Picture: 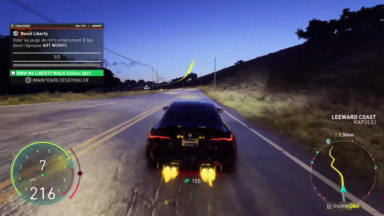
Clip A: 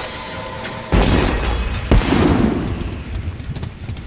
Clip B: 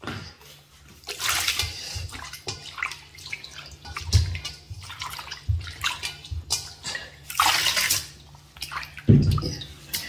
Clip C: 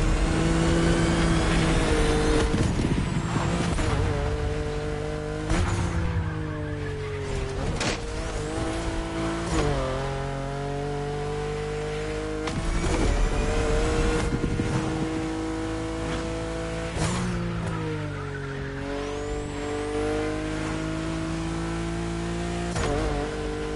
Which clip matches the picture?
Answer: C